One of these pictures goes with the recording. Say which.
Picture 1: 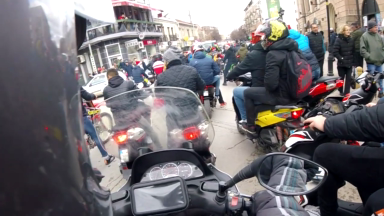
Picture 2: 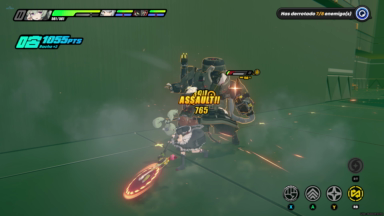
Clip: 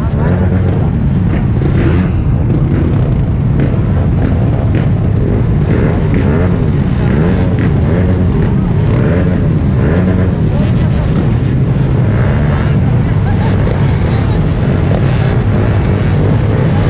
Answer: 1